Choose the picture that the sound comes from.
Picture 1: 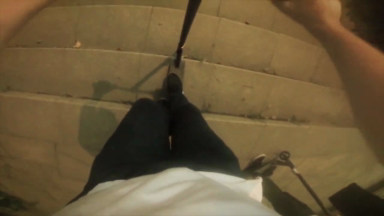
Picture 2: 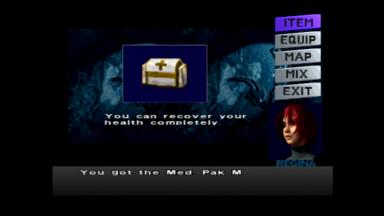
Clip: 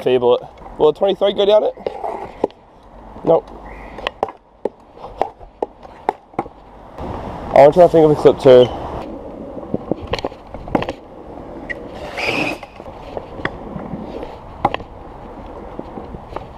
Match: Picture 1